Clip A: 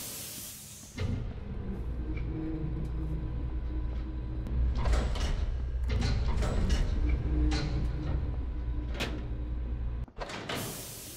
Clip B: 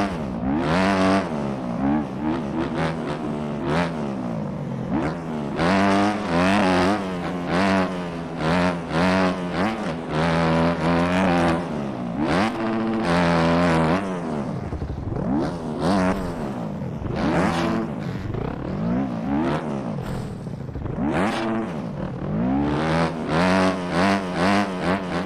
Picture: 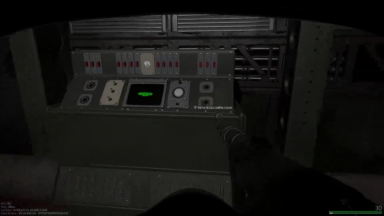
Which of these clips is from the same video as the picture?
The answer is A